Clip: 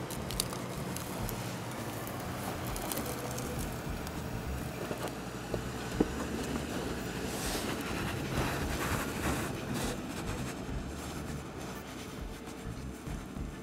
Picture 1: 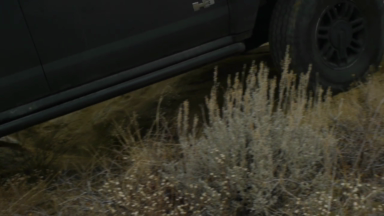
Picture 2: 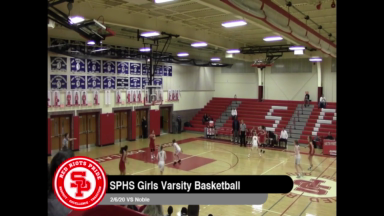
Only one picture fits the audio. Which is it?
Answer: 1